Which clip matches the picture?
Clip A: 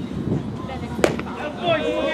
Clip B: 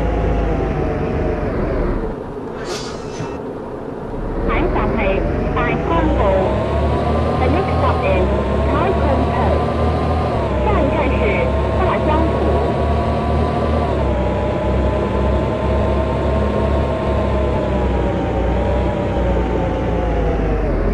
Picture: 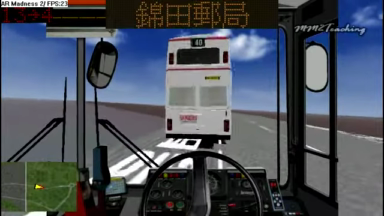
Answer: B